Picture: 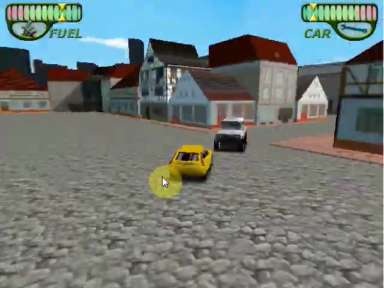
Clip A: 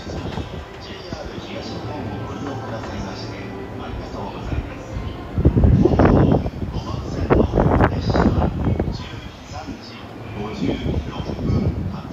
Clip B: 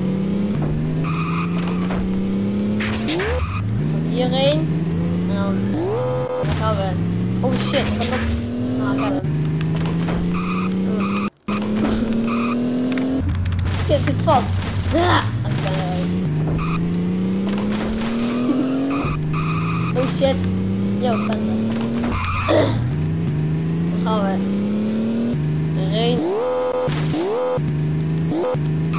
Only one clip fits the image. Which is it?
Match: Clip B